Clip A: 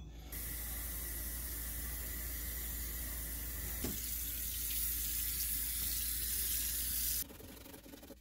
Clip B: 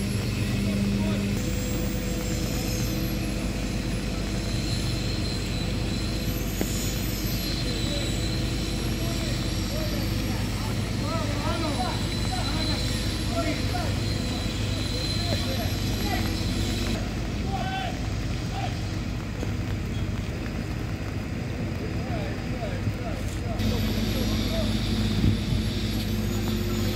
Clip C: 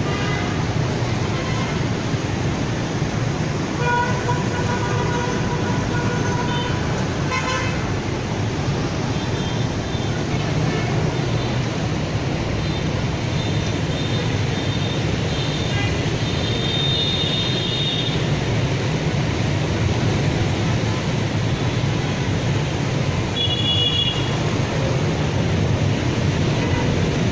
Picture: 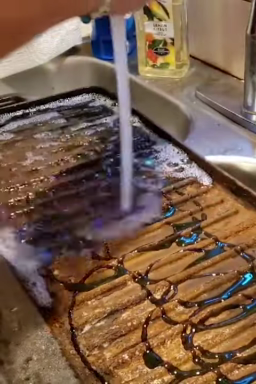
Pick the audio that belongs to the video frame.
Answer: A